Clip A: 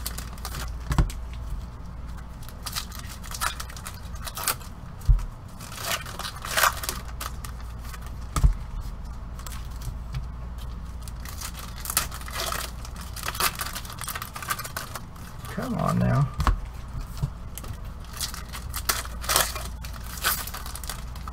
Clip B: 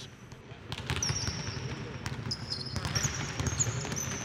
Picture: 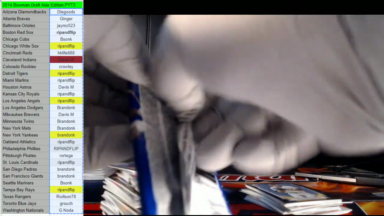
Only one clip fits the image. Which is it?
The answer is A